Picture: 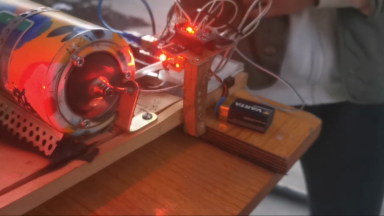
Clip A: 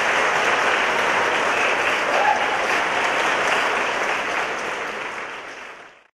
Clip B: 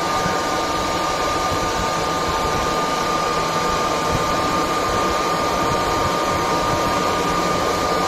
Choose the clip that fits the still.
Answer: B